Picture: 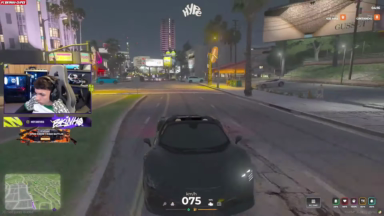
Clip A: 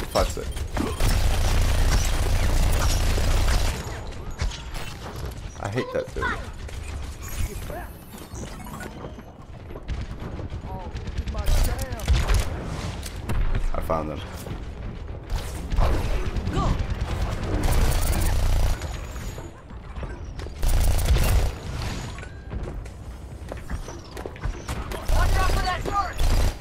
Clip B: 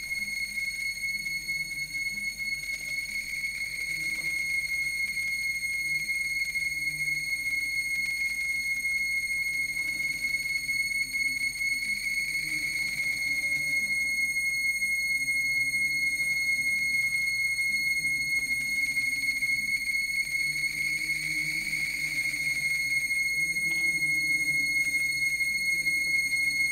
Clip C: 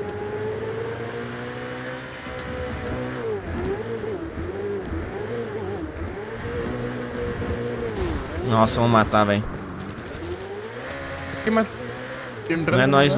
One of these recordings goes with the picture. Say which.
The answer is C